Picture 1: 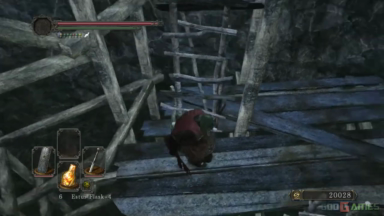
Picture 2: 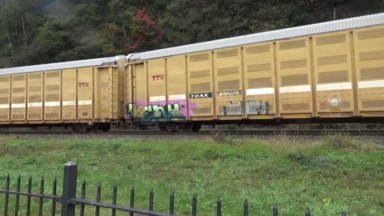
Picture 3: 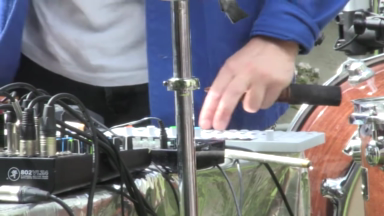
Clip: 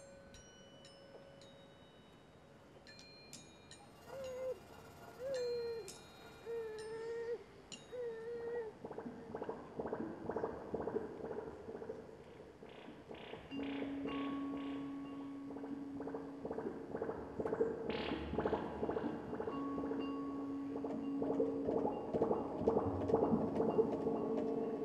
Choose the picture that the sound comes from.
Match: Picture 3